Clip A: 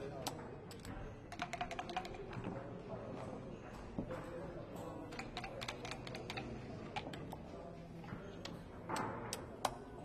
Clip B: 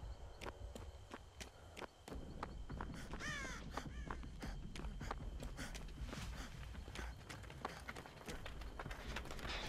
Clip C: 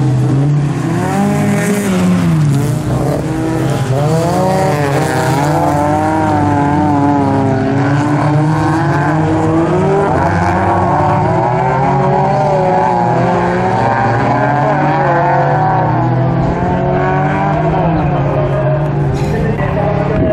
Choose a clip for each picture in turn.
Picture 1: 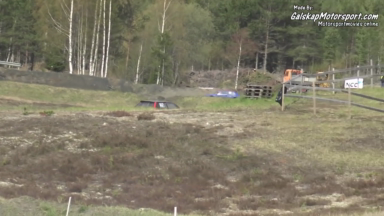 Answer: C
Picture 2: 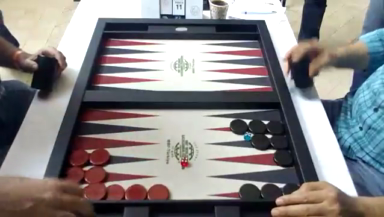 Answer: A